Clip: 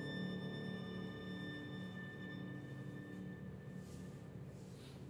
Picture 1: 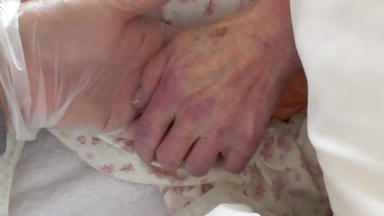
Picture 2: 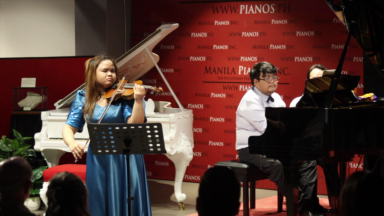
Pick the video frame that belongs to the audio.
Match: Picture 2